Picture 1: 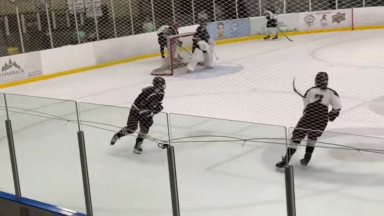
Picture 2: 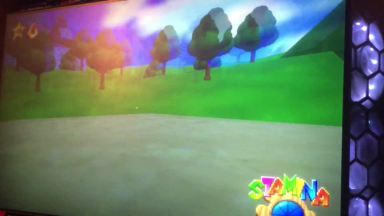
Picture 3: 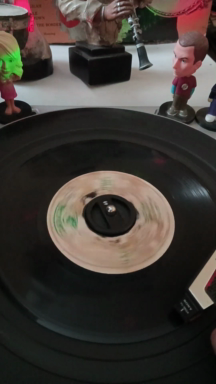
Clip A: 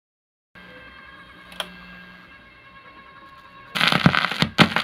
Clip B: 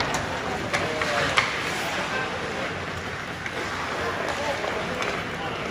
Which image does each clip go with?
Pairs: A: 3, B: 1